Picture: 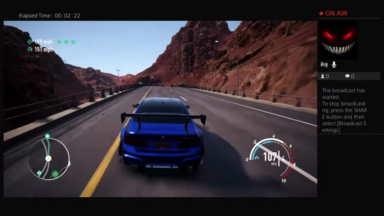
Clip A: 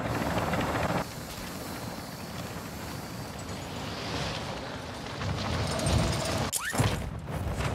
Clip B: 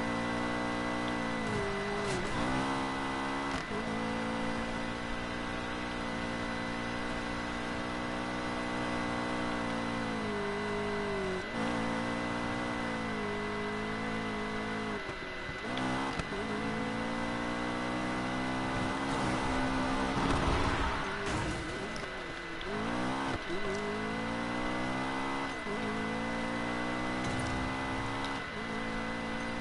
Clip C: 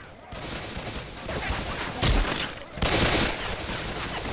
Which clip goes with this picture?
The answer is B